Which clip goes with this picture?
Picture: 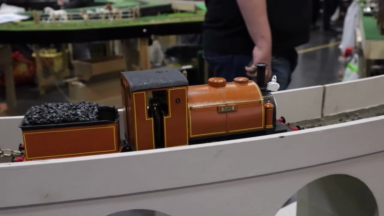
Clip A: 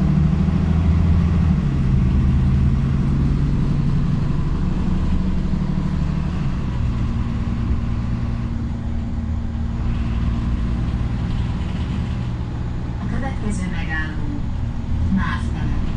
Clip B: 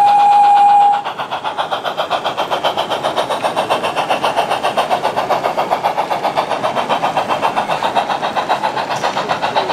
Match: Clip B